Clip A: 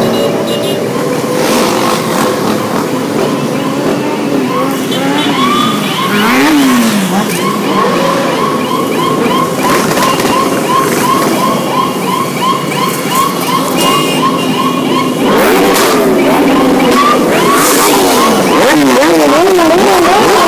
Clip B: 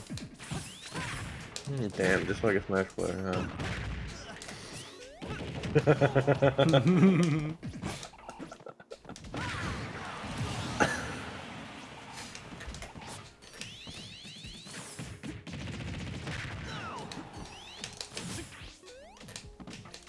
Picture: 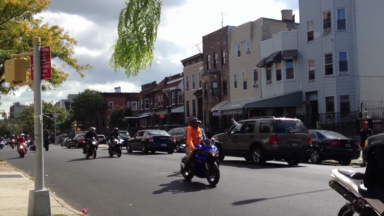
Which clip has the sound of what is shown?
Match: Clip A